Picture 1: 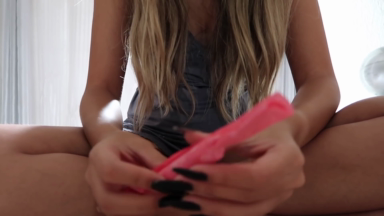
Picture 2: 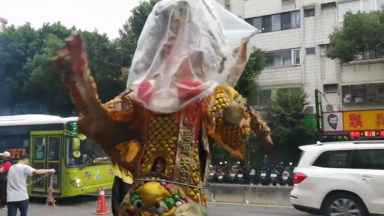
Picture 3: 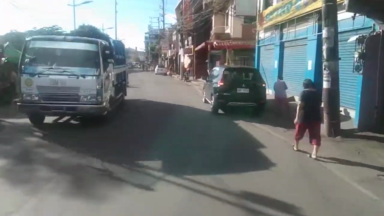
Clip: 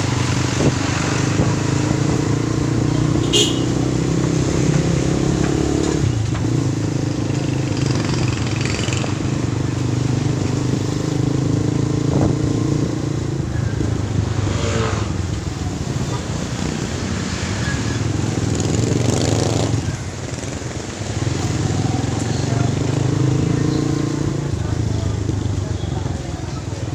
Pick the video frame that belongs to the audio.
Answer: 3